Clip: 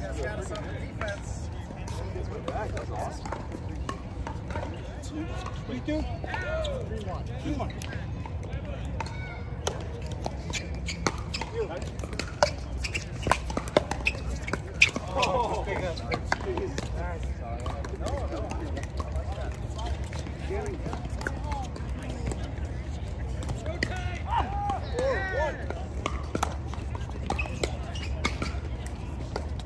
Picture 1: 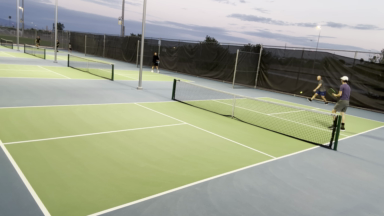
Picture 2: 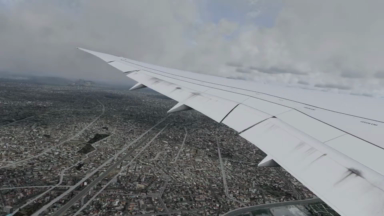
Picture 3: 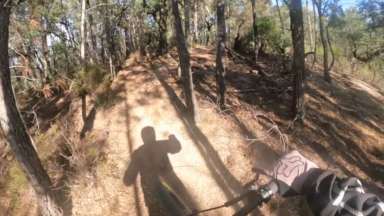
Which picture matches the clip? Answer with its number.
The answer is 1